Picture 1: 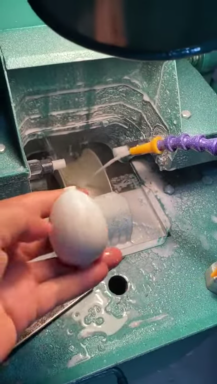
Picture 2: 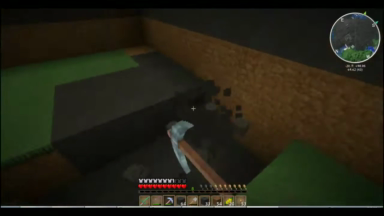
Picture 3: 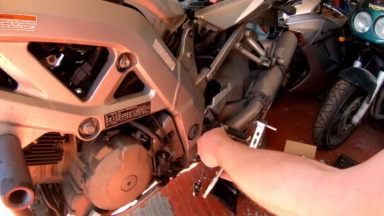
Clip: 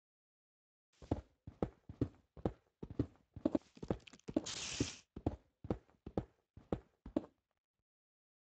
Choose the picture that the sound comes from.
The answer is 2